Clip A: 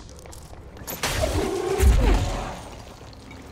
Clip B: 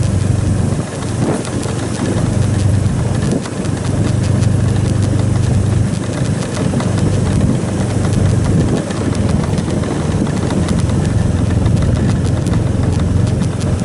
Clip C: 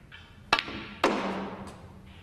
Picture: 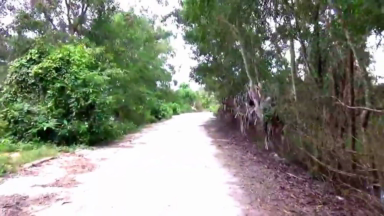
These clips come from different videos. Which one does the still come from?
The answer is B